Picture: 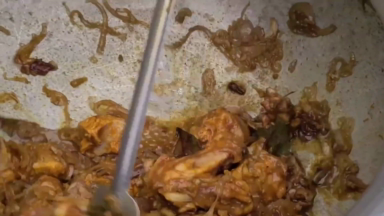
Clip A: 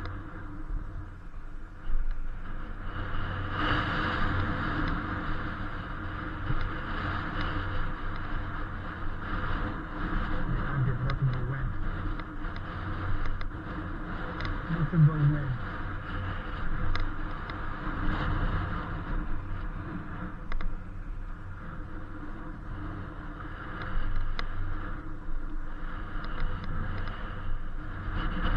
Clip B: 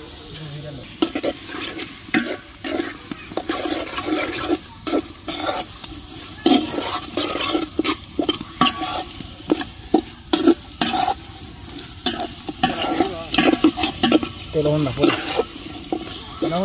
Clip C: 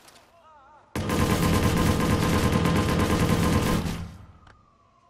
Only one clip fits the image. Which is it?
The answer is B